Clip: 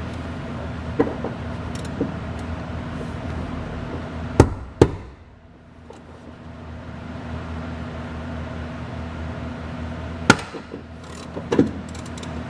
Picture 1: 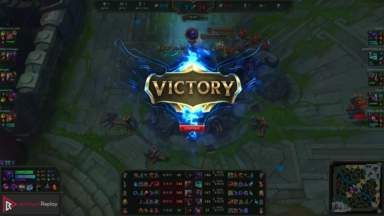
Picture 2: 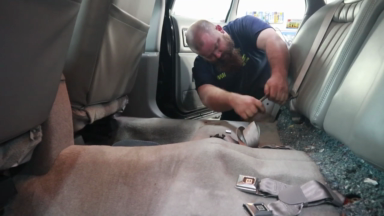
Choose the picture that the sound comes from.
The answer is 2